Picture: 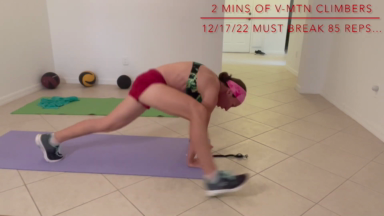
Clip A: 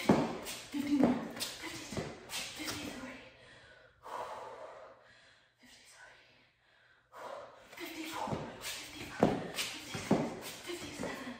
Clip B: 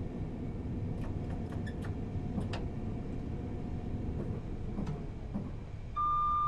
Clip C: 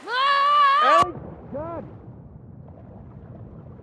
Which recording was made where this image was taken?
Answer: A